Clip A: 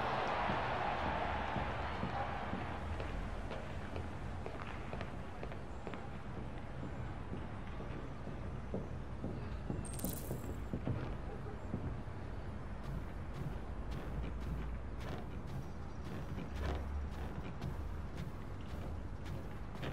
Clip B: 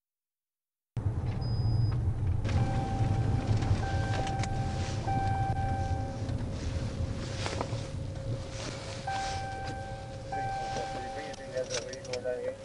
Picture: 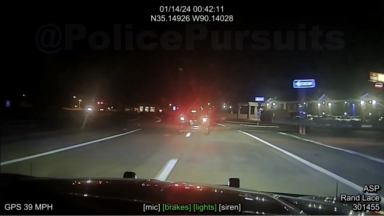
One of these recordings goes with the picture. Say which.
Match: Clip B